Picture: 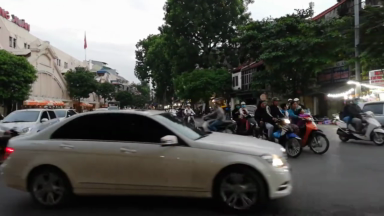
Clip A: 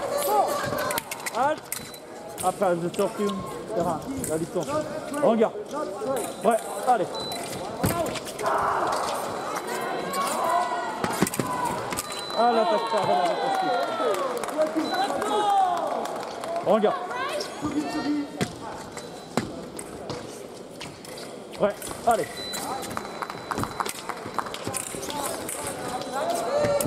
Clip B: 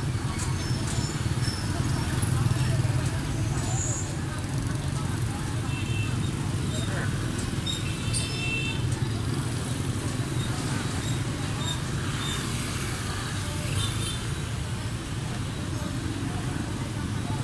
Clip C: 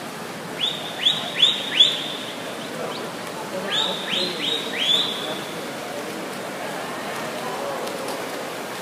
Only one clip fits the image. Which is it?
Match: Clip B